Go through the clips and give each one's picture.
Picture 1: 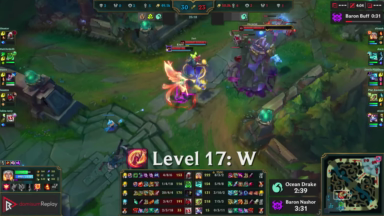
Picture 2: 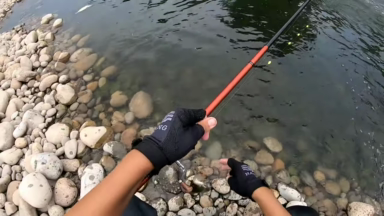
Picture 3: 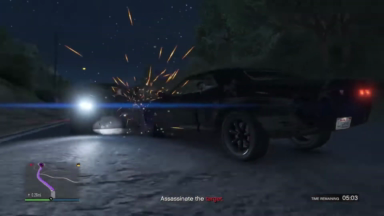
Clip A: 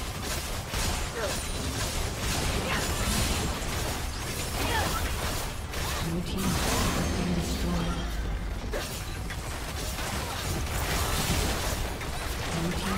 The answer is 1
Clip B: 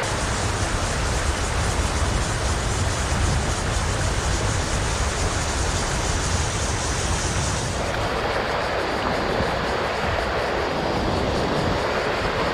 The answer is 2